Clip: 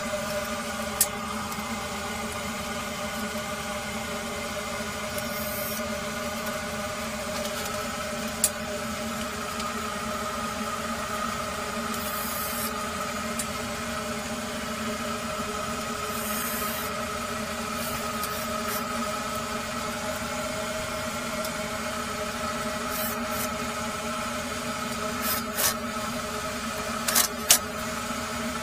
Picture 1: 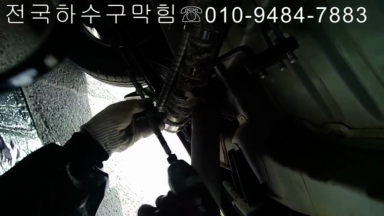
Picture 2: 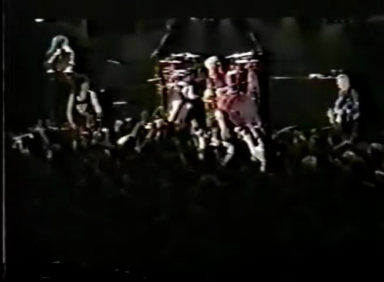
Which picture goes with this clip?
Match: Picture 1